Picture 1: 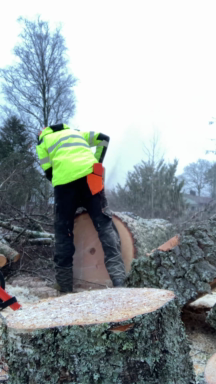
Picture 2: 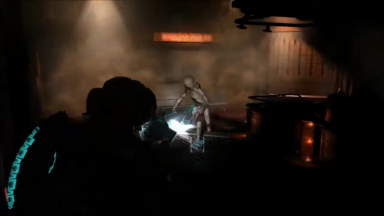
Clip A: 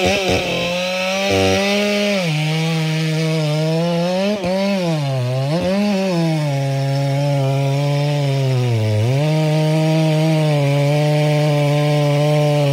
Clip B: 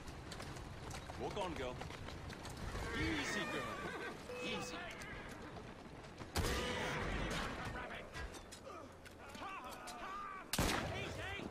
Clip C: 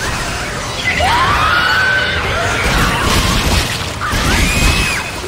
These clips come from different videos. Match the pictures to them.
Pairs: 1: A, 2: C